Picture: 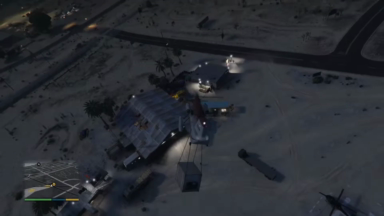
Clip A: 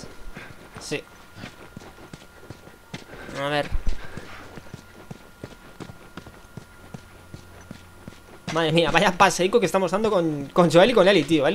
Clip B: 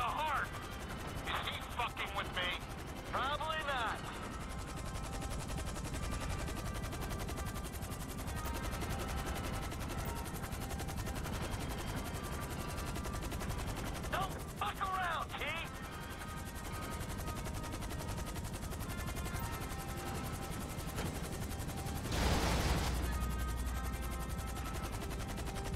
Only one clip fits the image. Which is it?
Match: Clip B